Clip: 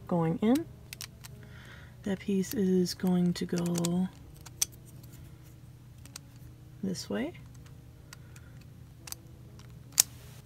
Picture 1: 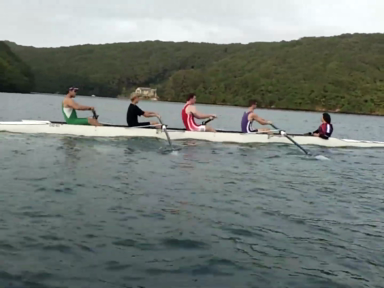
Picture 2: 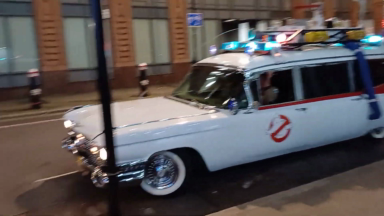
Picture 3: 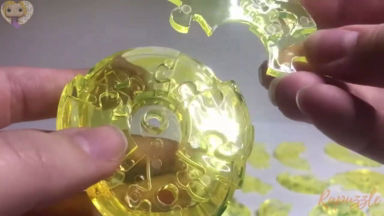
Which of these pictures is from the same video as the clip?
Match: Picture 3